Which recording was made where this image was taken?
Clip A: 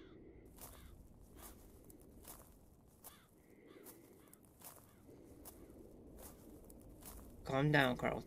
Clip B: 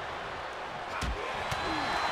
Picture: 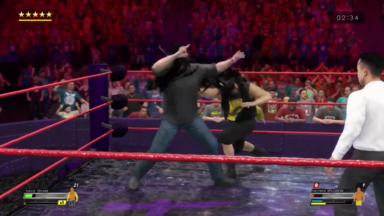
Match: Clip B